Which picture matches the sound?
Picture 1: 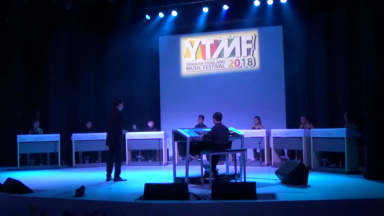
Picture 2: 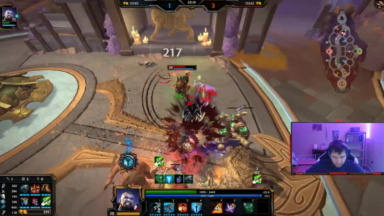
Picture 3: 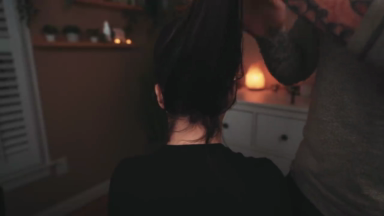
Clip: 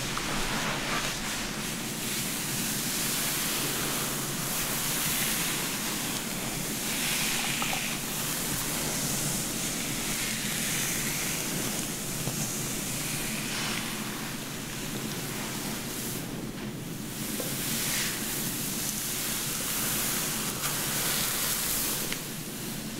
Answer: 3